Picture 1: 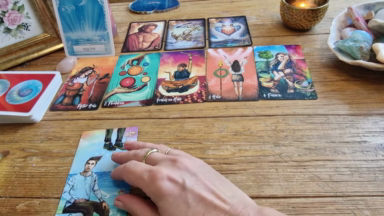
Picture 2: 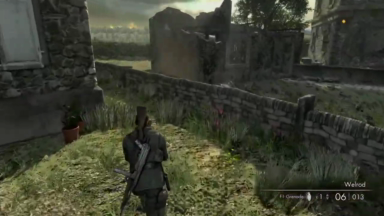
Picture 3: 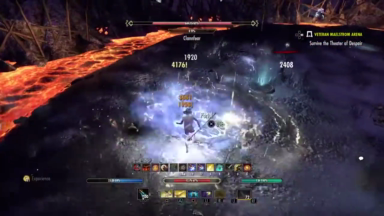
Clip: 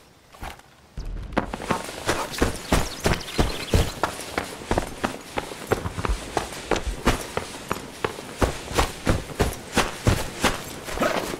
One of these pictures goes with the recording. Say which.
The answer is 2